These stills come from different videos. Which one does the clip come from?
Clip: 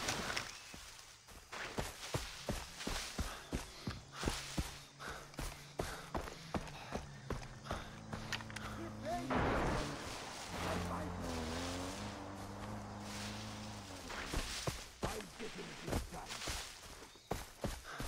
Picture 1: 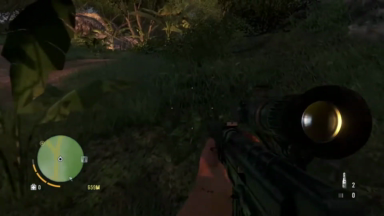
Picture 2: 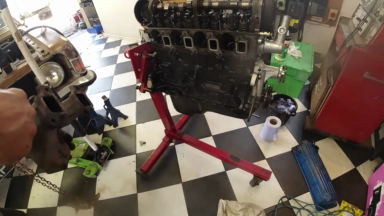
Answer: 1